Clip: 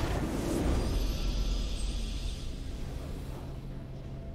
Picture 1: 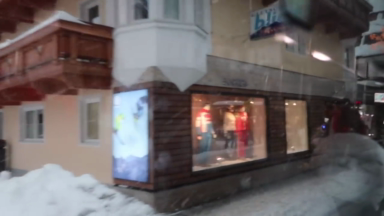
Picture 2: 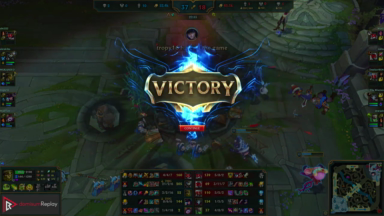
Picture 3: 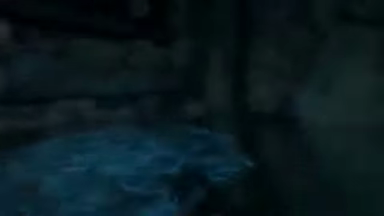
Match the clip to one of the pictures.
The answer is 2